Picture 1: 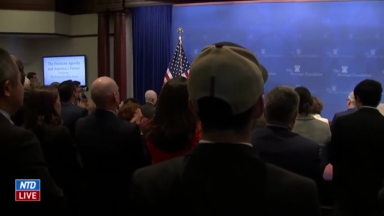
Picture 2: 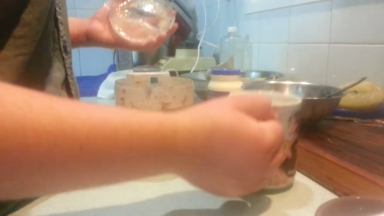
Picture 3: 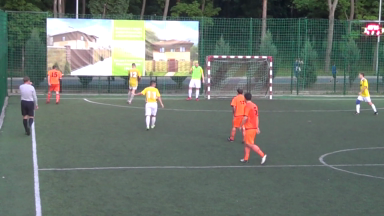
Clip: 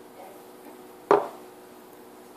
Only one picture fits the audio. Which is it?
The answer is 2